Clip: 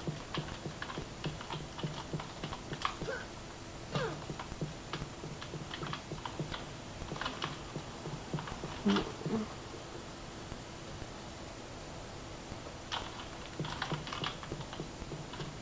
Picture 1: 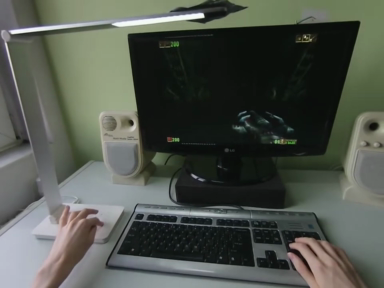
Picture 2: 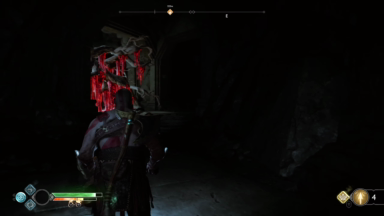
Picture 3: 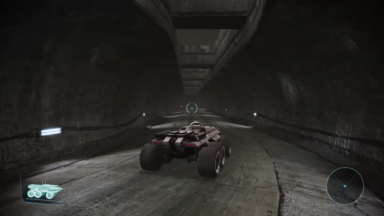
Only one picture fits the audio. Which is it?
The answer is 1